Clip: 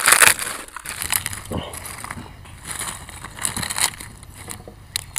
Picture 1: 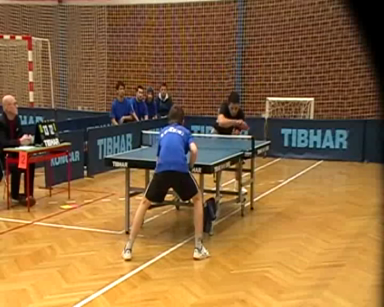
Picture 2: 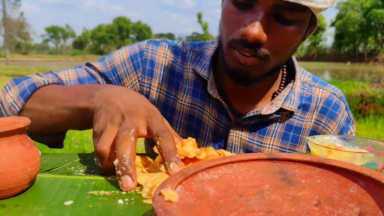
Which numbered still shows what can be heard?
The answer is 2